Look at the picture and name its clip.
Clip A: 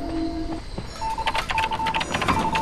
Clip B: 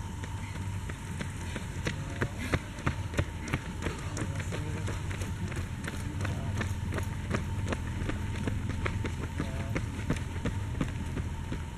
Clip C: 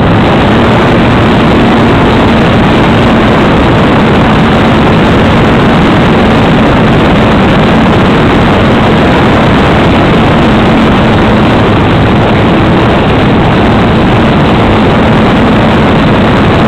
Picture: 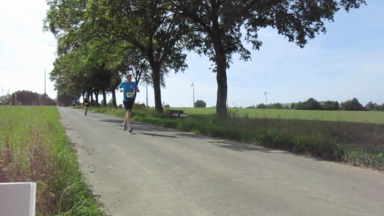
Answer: B